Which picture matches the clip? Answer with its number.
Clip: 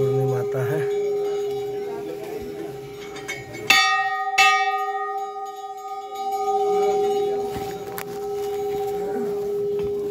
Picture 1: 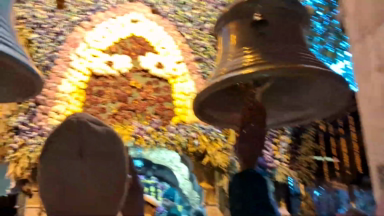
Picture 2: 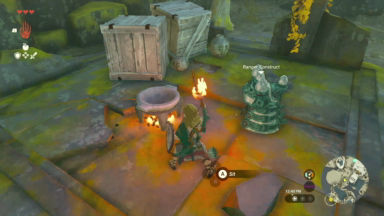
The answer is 1